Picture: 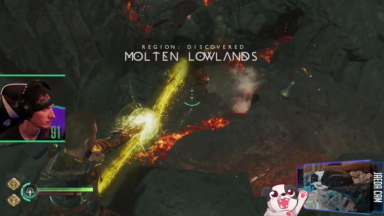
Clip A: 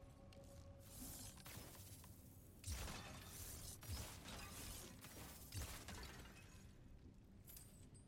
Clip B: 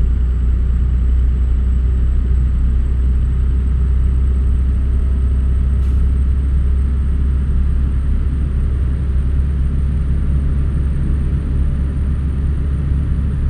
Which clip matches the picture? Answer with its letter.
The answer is A